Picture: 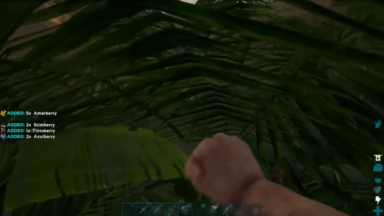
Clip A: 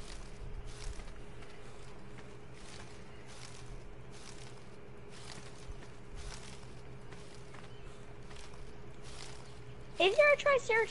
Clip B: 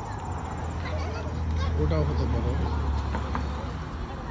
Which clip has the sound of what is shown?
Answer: A